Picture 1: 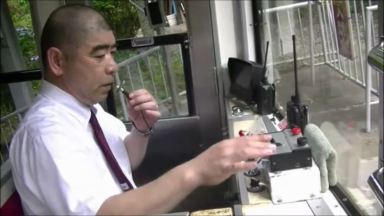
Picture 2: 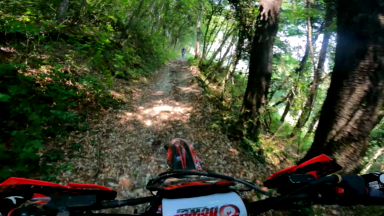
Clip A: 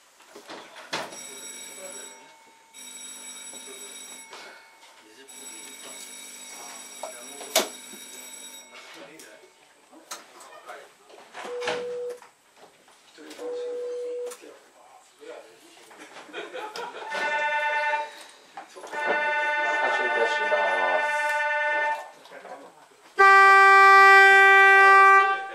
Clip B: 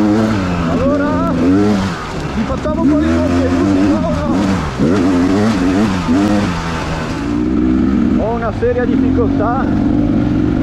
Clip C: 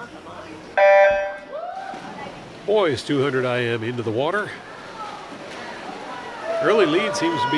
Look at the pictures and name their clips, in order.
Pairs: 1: A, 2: B